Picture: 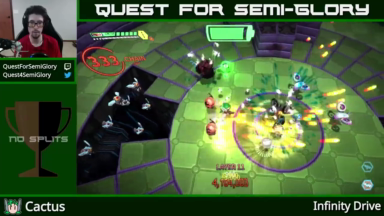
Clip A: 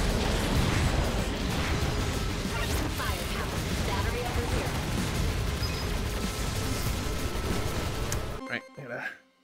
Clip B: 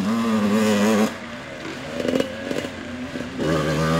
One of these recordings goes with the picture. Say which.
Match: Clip A